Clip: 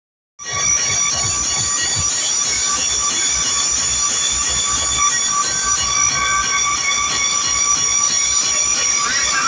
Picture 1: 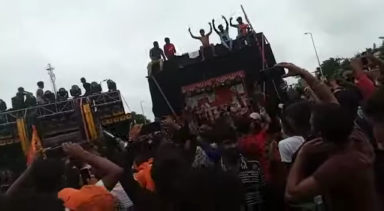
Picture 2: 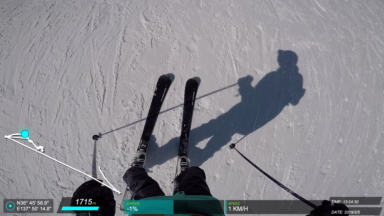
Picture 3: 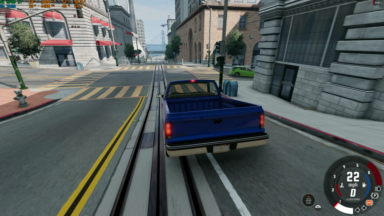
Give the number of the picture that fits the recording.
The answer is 1